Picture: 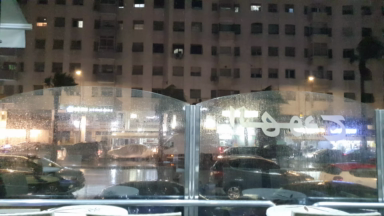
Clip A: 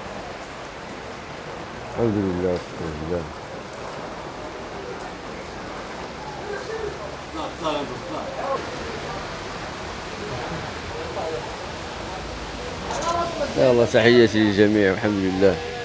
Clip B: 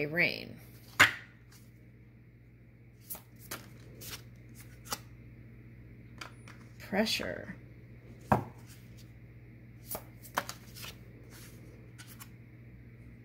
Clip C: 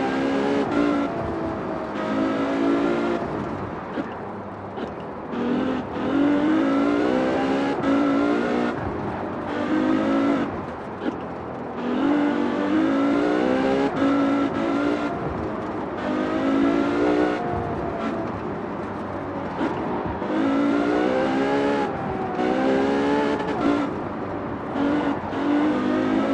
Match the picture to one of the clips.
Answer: A